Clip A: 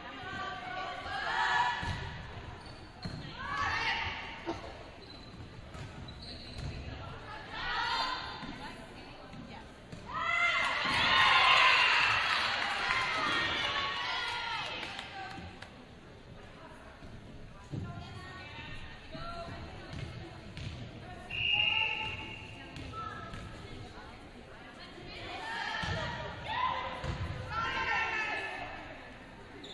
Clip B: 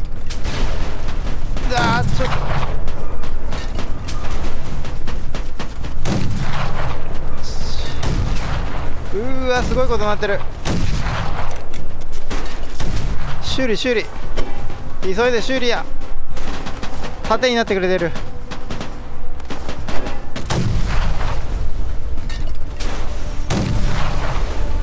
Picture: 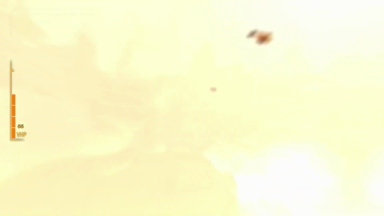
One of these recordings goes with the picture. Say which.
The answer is B